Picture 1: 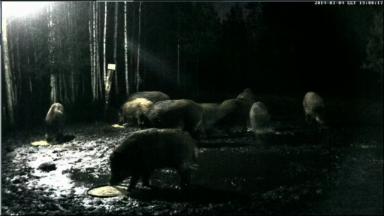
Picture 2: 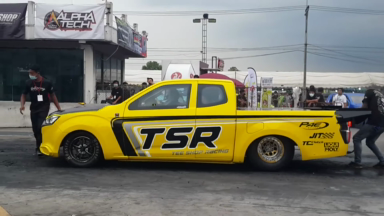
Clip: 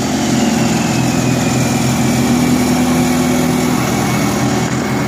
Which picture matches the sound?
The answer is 2